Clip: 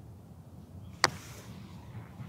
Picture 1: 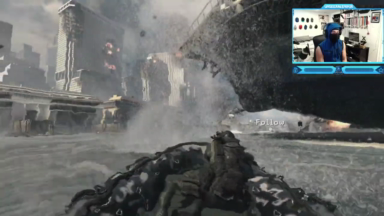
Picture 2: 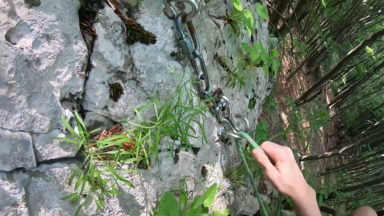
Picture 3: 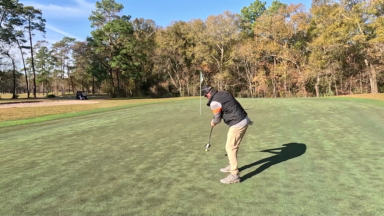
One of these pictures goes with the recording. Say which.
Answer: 3